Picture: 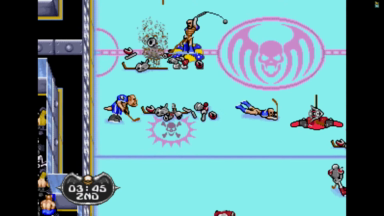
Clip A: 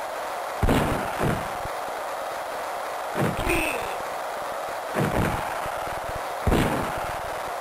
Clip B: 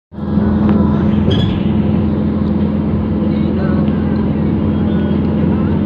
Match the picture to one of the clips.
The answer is A